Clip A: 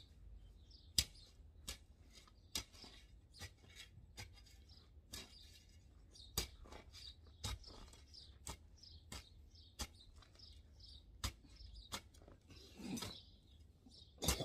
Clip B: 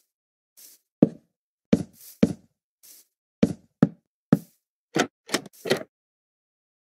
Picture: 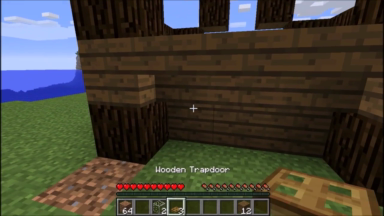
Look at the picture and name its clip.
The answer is B